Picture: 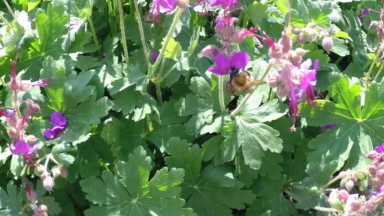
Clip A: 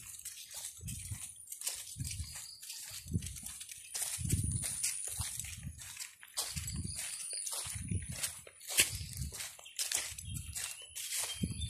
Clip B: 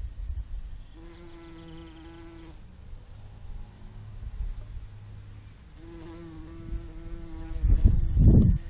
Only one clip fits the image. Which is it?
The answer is B